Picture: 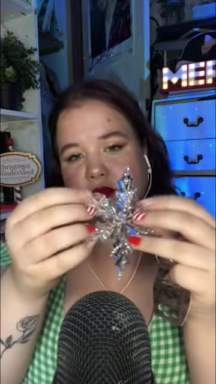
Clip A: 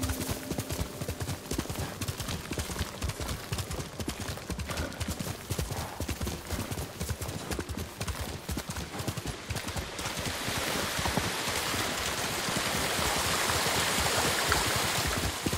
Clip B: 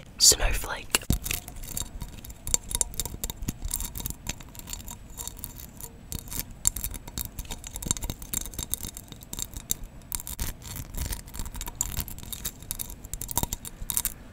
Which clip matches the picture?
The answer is B